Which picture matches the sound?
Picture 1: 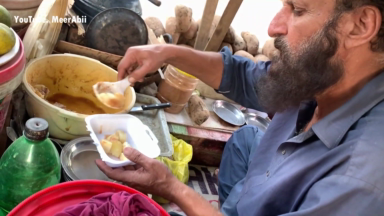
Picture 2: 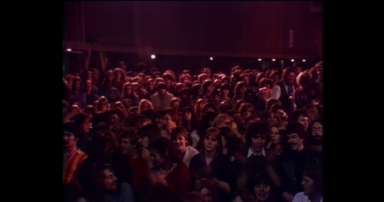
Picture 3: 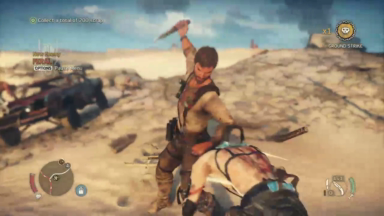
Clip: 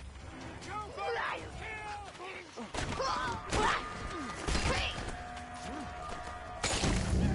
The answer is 3